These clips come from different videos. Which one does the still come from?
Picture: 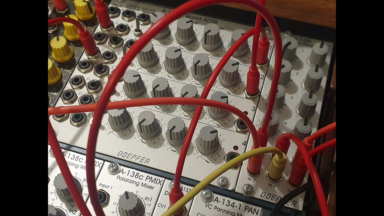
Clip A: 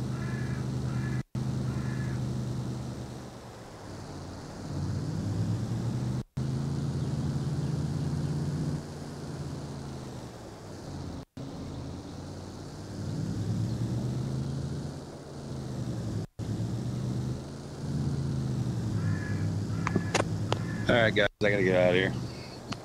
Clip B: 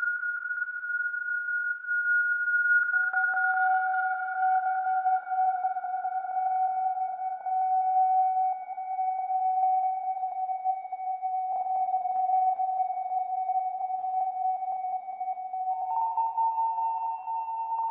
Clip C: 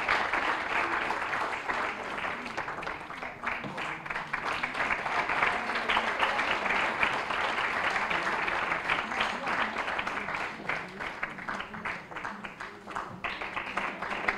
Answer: B